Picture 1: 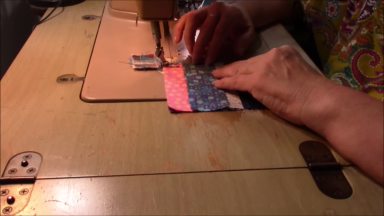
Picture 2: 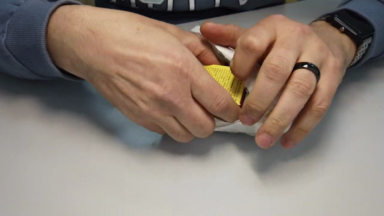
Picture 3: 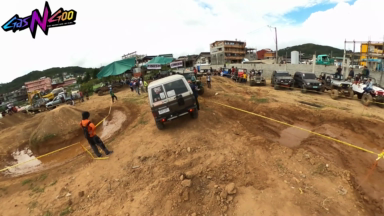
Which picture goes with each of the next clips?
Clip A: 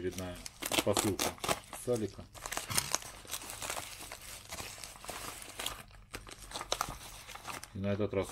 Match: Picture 2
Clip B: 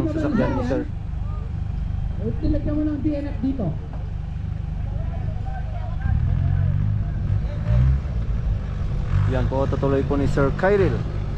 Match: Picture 3